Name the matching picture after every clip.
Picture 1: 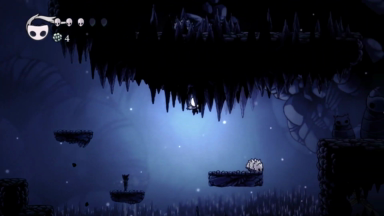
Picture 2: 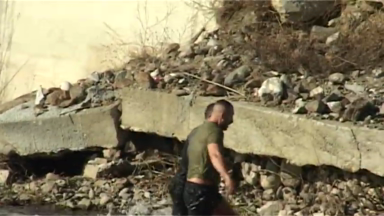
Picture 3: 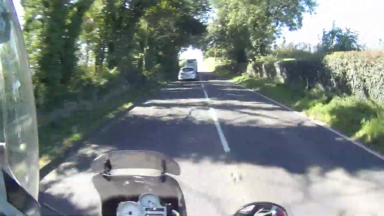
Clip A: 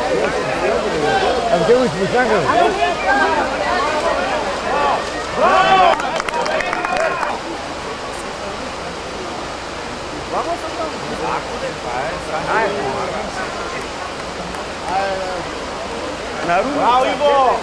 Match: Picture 2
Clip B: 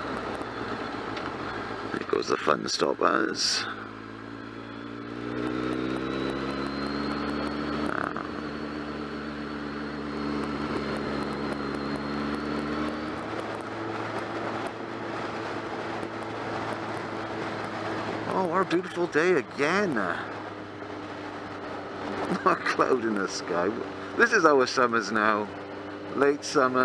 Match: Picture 3